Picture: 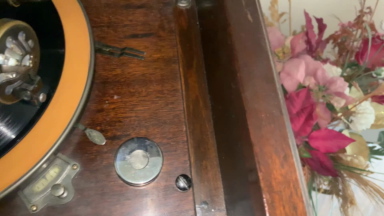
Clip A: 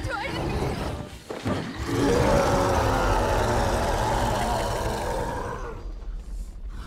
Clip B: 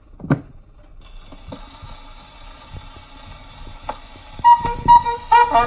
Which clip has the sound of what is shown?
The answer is B